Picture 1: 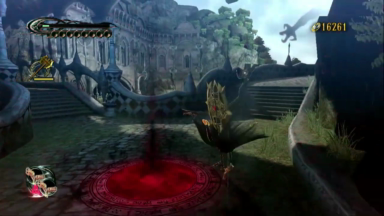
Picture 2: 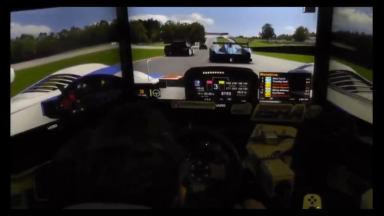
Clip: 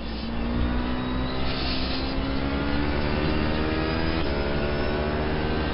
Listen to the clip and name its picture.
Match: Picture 2